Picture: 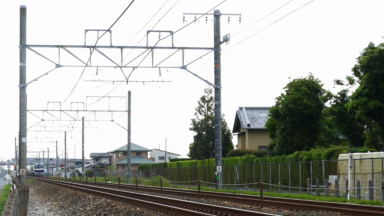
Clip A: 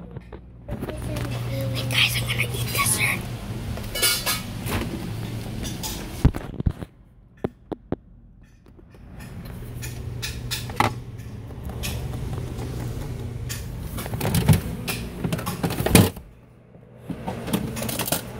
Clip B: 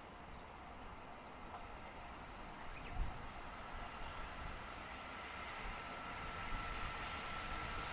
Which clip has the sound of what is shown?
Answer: B